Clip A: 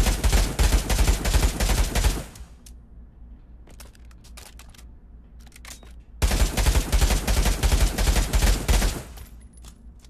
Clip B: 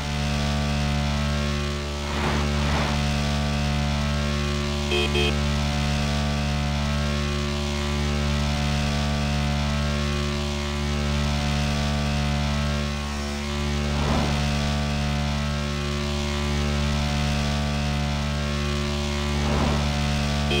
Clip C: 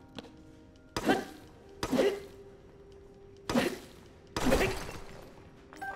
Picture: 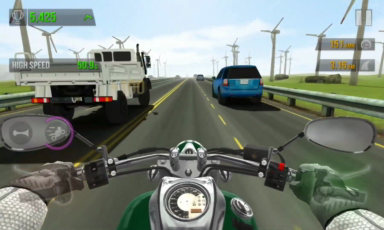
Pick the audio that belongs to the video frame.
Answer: B